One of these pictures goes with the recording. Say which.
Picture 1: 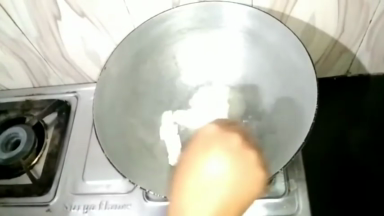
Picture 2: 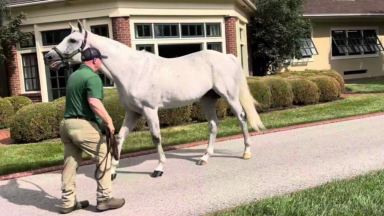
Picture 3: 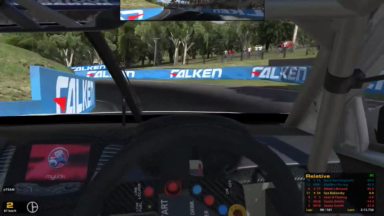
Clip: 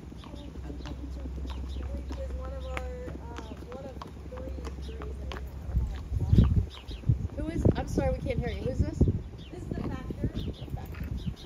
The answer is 2